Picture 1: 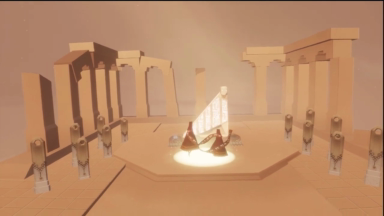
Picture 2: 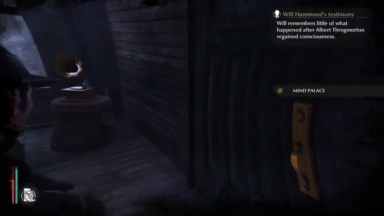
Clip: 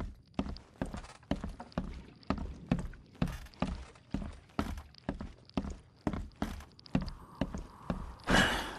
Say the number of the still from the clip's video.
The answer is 2